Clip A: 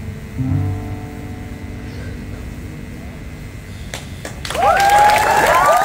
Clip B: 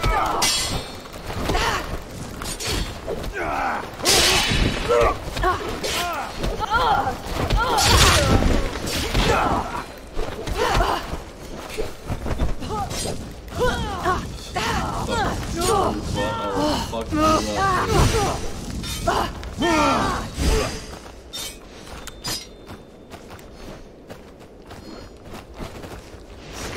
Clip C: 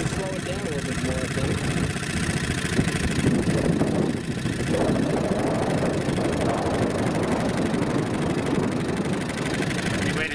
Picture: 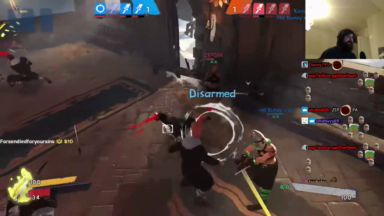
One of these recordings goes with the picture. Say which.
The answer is B